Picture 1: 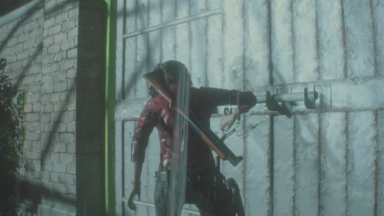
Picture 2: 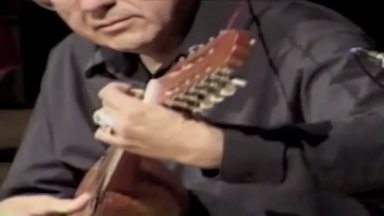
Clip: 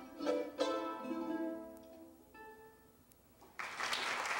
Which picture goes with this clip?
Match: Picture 2